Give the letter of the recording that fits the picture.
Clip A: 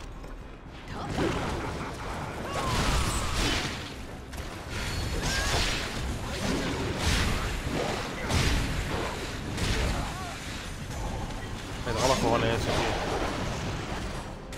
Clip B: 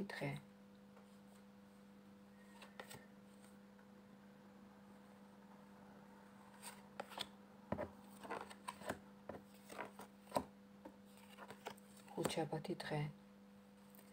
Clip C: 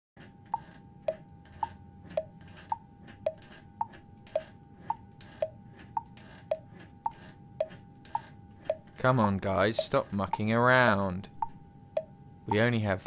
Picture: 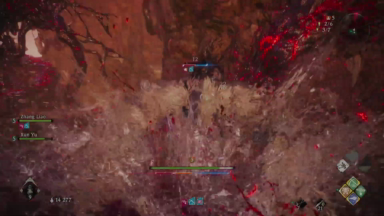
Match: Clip A